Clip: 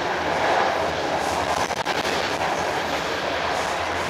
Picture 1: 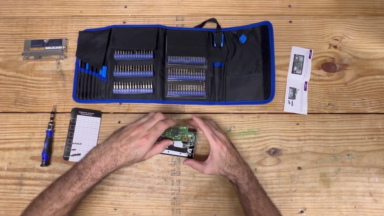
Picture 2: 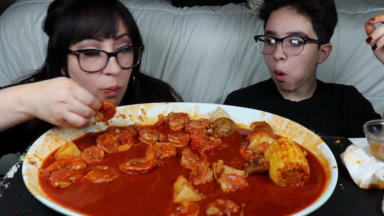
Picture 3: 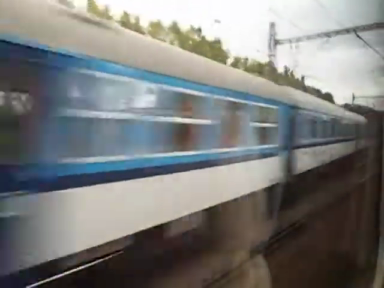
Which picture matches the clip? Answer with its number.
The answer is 3